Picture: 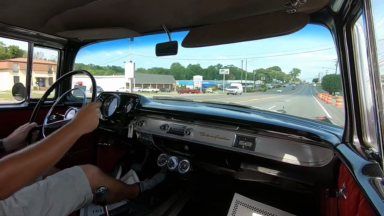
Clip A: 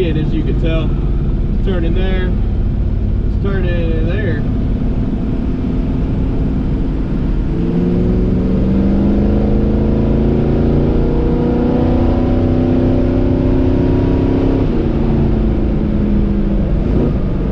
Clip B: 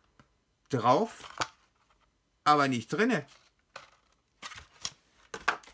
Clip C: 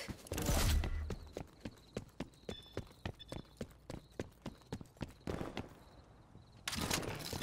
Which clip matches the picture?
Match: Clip A